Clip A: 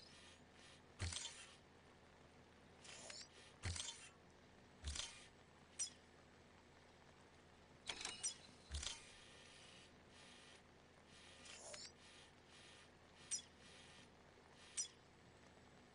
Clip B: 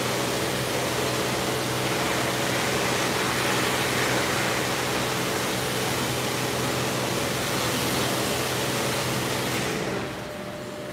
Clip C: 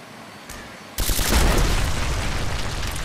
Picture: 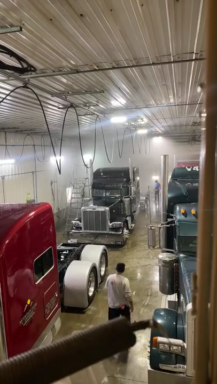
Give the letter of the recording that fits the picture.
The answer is B